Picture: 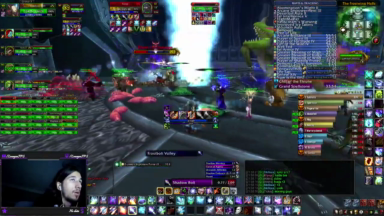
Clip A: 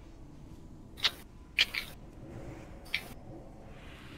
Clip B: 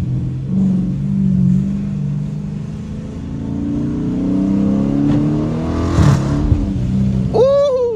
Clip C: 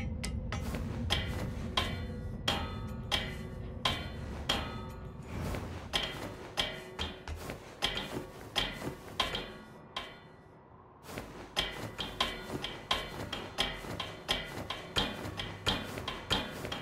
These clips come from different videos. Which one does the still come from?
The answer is A